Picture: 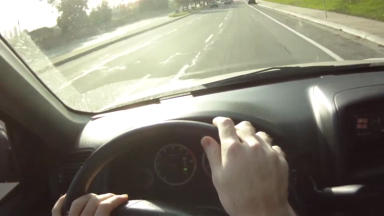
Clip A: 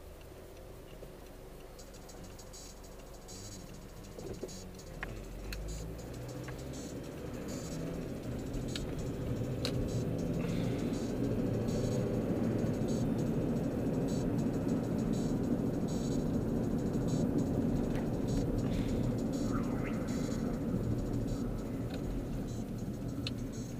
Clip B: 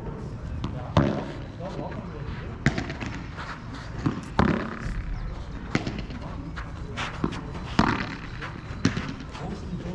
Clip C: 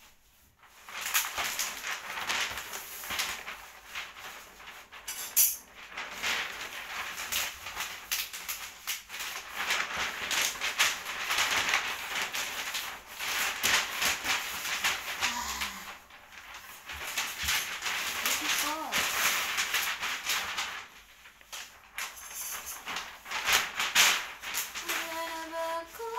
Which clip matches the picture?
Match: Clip A